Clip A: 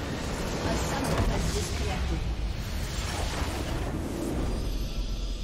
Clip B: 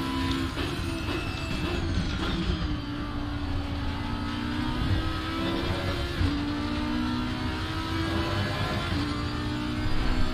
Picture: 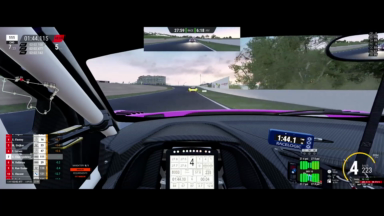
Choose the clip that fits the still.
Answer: B